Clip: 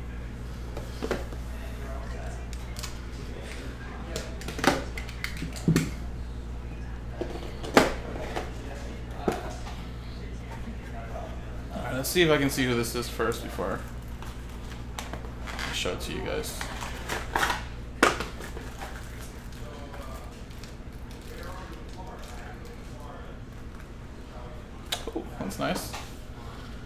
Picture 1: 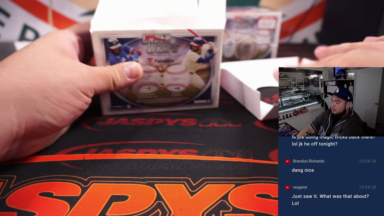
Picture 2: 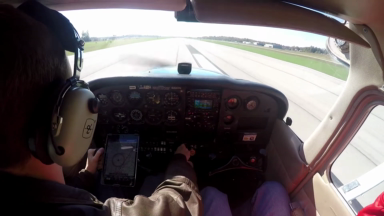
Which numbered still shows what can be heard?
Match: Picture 1